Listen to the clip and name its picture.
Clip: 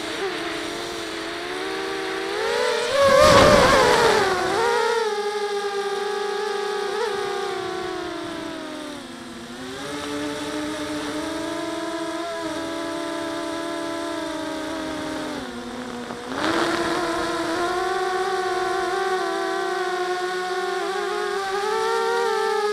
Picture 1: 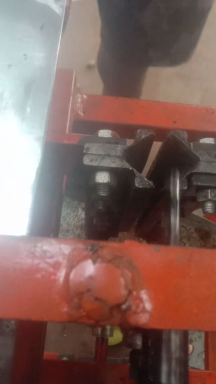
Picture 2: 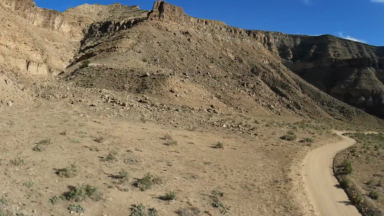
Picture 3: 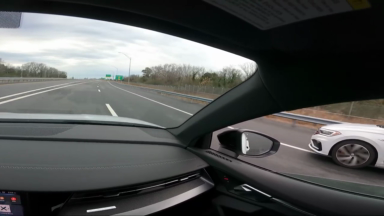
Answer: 2